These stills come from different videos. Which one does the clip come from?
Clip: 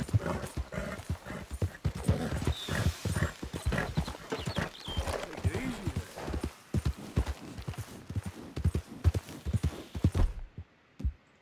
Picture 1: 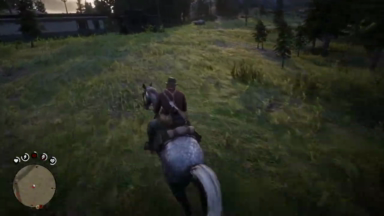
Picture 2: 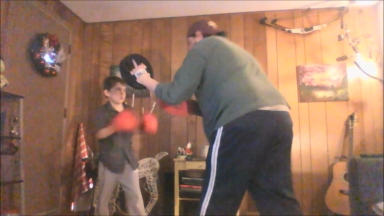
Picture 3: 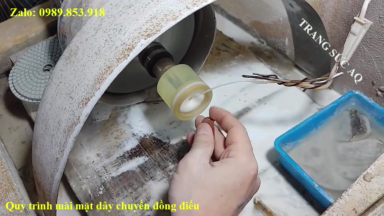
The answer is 1